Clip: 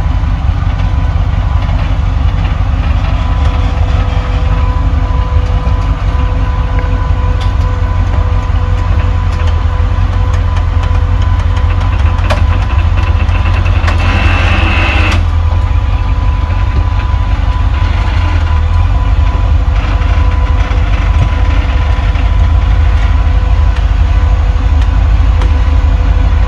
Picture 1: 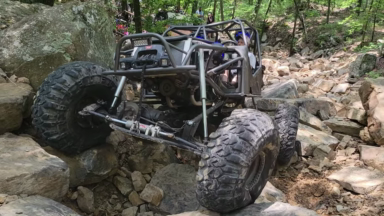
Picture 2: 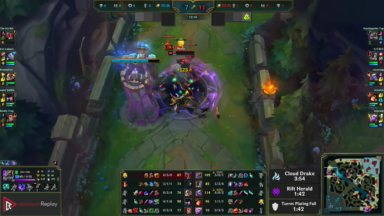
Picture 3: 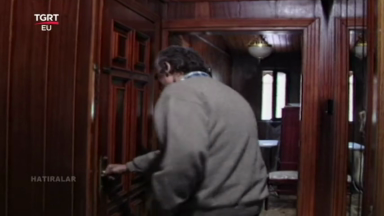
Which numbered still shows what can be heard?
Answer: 1